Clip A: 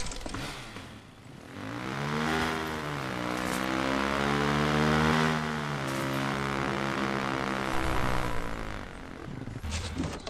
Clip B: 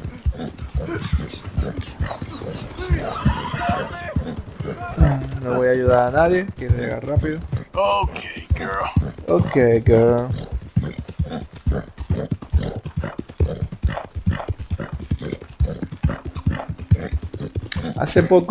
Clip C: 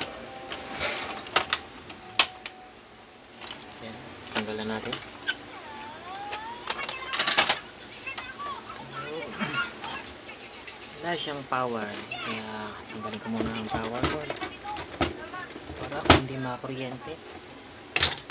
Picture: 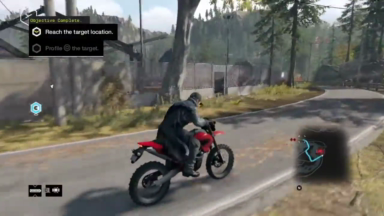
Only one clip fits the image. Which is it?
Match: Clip A